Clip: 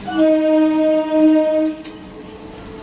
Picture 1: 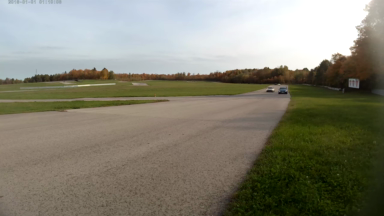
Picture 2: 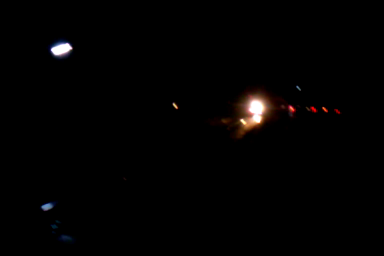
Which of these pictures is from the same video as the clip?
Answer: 2